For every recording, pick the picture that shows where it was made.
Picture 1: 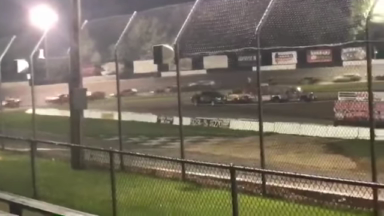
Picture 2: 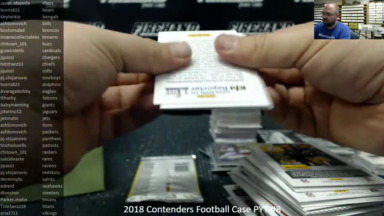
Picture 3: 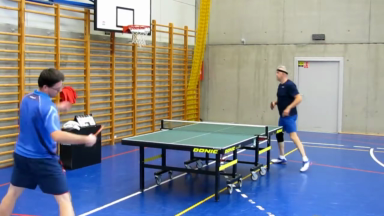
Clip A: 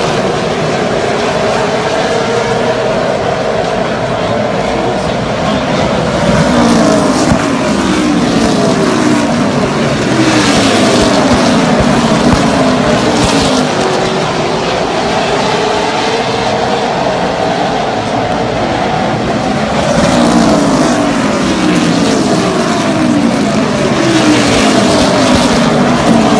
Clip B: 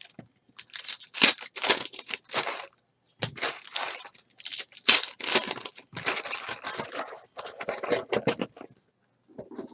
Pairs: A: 1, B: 2